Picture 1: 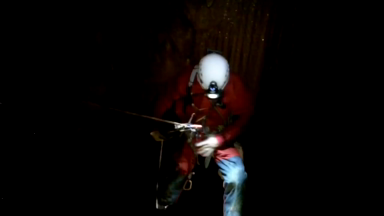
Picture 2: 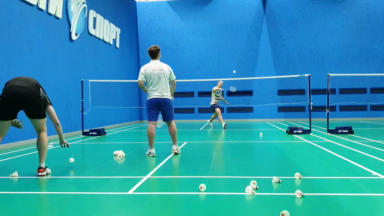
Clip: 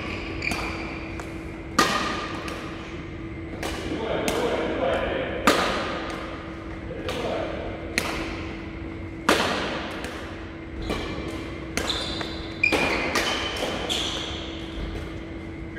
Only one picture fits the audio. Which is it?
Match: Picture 2